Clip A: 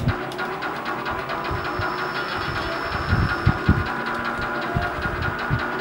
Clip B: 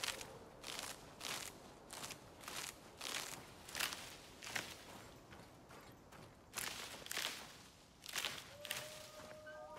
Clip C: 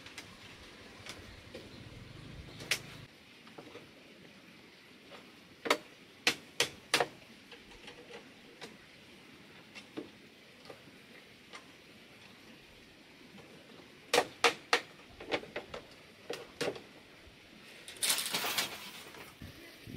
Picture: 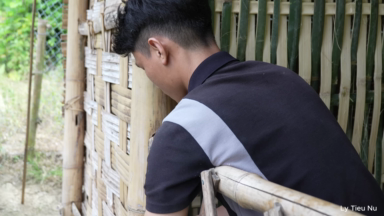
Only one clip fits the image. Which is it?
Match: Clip C